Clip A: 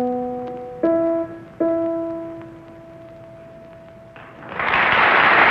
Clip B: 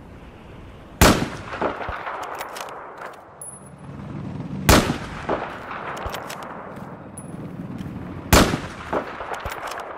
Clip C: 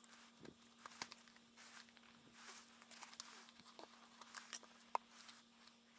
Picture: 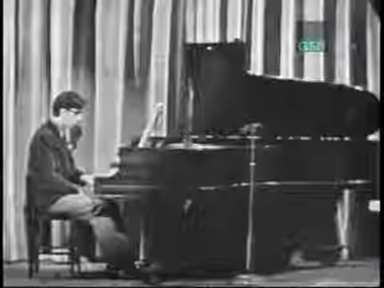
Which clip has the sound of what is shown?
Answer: A